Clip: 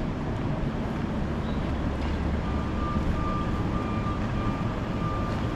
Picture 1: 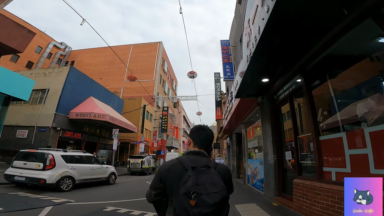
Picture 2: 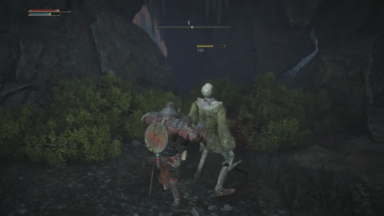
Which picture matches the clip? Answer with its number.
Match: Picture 1